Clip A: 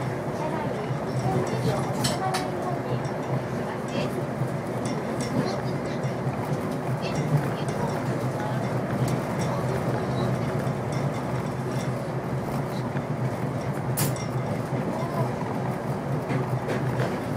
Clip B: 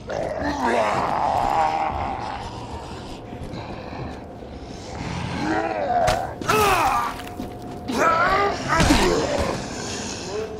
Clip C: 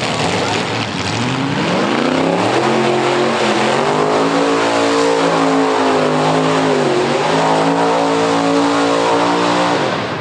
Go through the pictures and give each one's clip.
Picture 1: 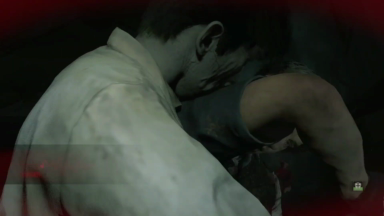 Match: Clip B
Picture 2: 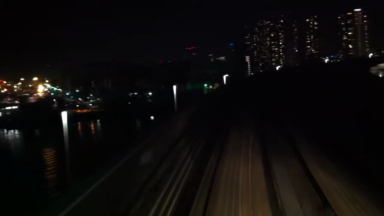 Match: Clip A